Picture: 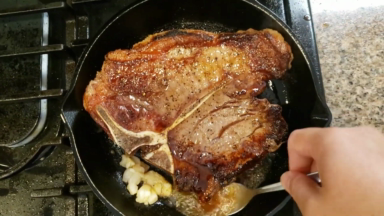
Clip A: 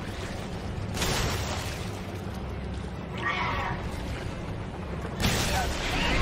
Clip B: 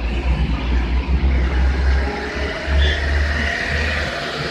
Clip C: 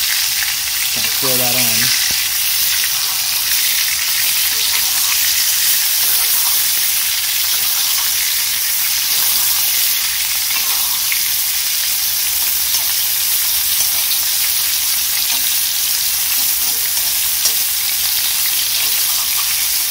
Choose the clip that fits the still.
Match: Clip C